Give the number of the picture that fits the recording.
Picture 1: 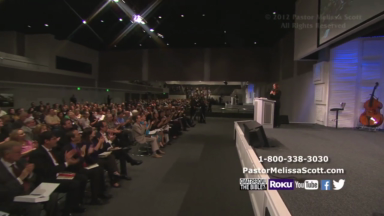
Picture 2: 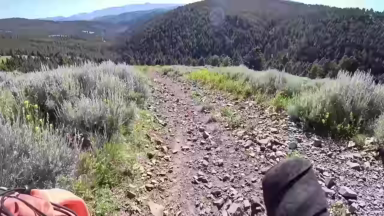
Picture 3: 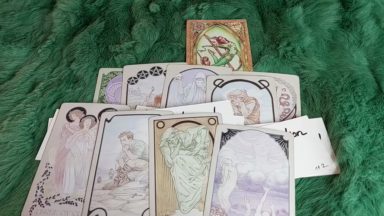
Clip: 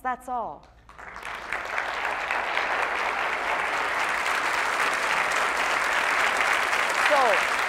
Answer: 1